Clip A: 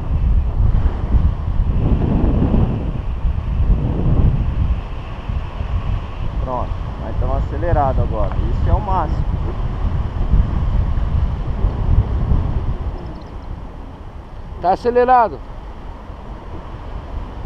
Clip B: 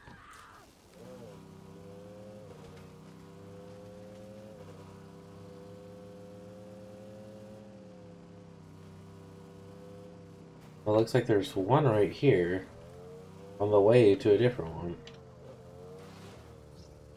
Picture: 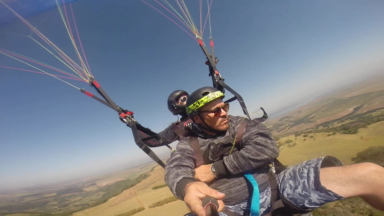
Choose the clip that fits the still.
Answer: A